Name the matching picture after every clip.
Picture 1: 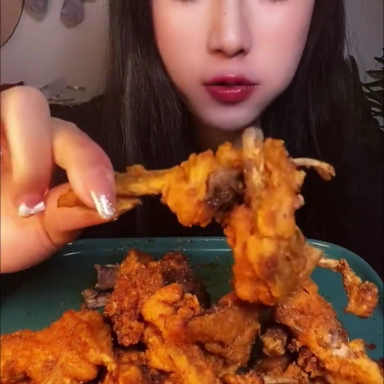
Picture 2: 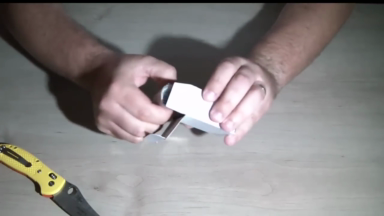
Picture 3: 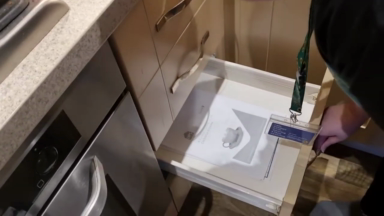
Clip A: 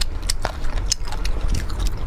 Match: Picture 1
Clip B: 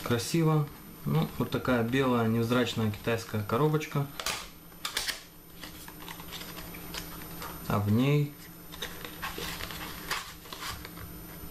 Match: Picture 2